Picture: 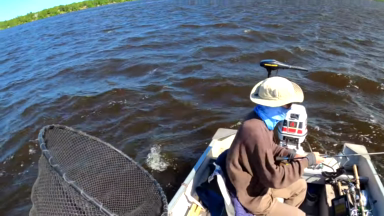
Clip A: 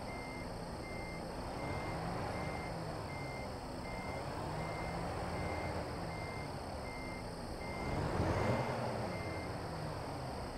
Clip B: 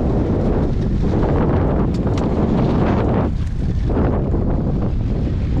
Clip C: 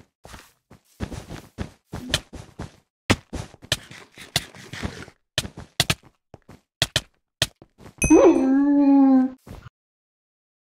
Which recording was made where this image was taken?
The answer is B